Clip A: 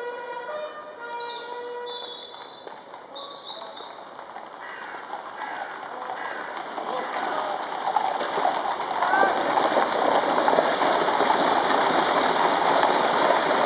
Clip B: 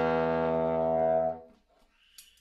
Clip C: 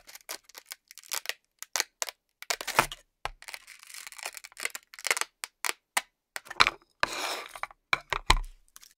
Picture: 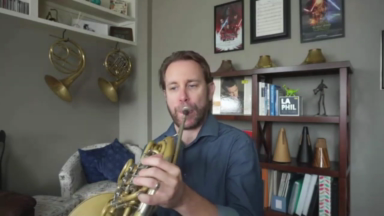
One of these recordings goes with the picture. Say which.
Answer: B